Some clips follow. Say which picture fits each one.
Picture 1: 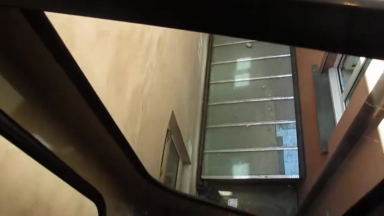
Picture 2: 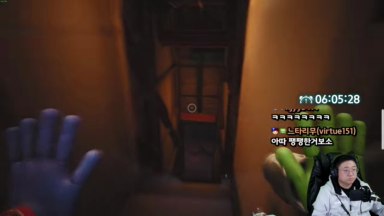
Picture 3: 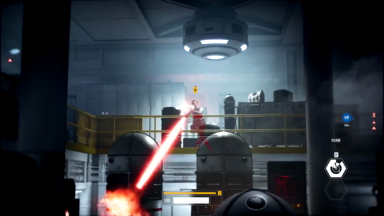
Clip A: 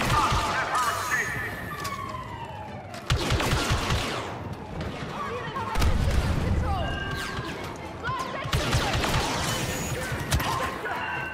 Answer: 3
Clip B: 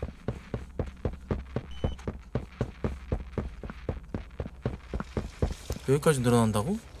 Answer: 2